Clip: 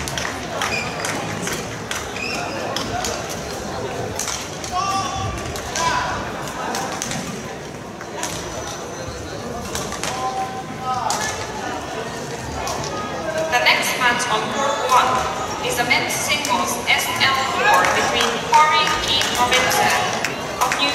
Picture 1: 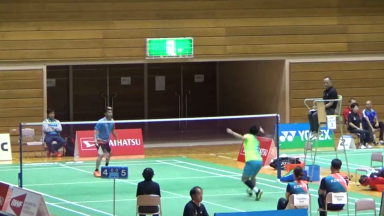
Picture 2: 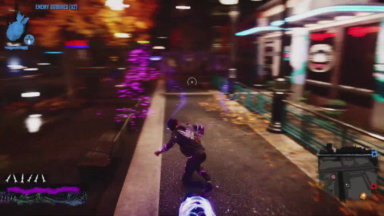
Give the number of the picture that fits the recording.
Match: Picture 1